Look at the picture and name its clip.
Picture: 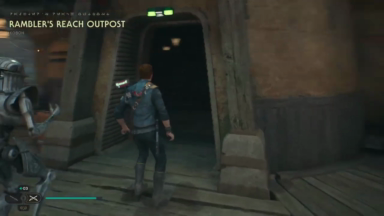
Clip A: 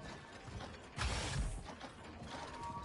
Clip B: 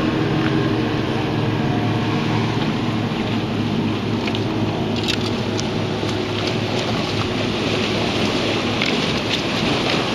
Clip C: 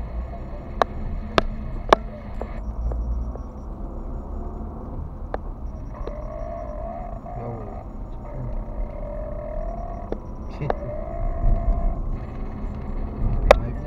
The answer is A